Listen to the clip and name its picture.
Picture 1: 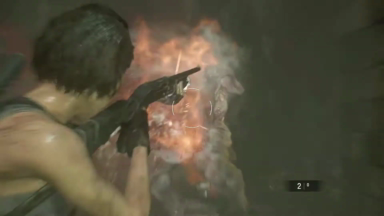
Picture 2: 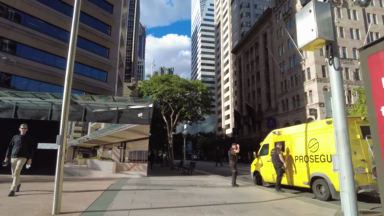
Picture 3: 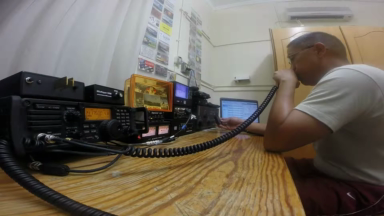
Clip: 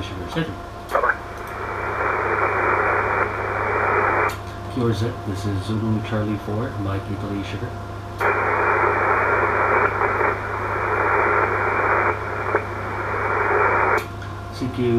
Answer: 3